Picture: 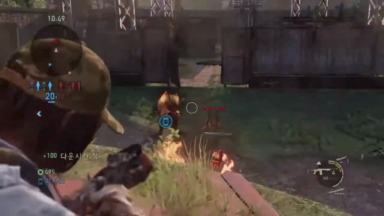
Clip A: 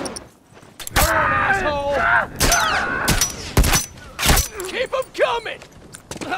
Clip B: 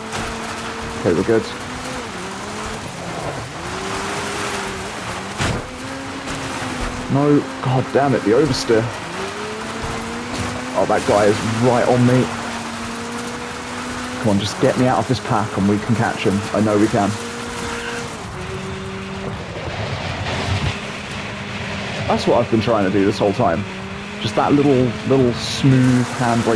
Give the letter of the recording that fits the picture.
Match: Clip A